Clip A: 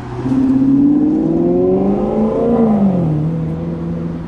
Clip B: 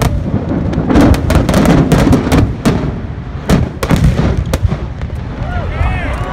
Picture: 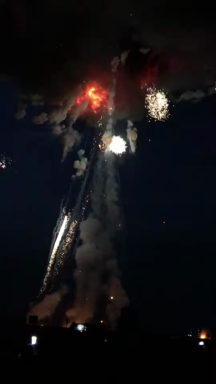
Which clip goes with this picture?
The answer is B